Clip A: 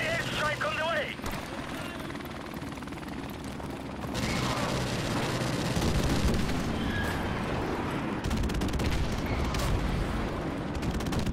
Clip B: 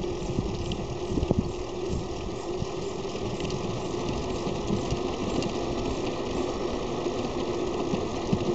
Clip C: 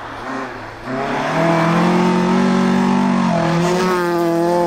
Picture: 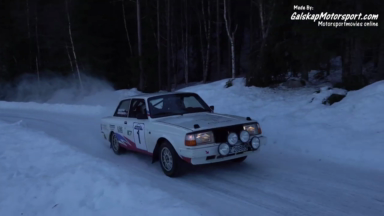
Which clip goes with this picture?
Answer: C